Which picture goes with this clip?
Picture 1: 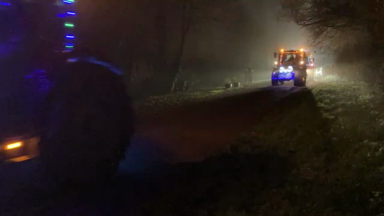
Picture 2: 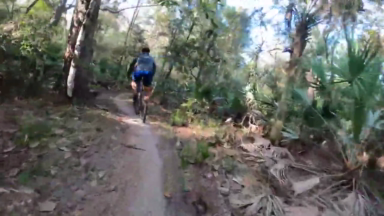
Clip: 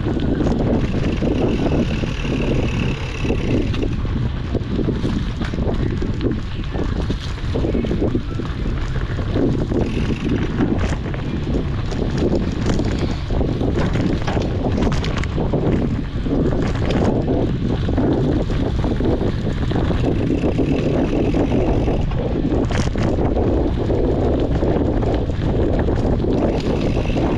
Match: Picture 2